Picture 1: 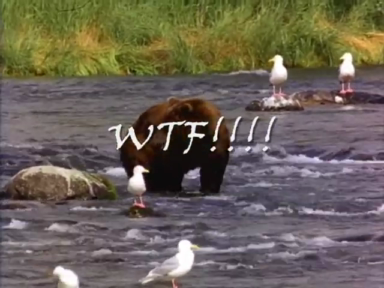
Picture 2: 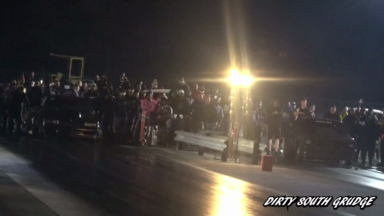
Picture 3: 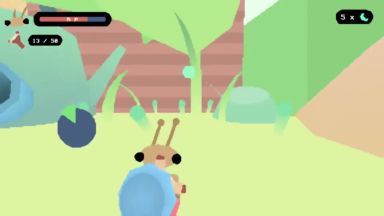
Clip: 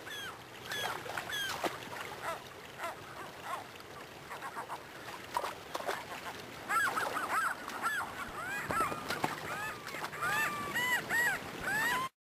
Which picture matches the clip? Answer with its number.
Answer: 1